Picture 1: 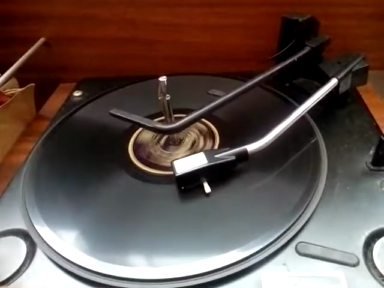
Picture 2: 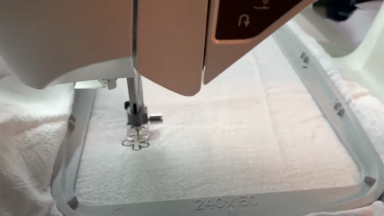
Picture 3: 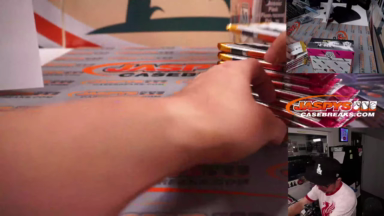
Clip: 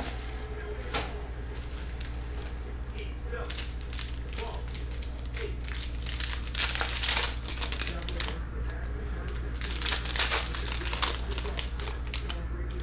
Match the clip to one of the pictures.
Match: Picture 3